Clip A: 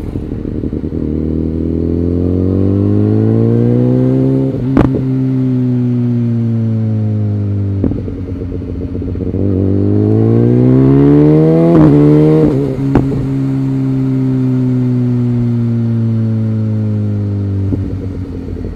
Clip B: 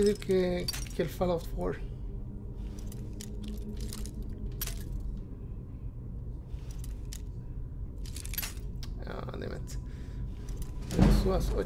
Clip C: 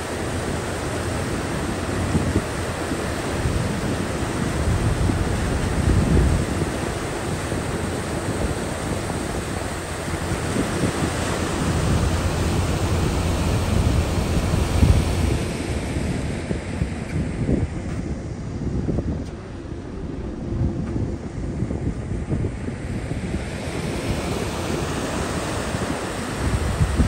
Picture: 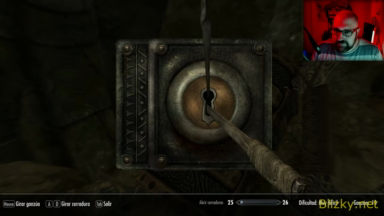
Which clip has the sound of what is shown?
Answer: B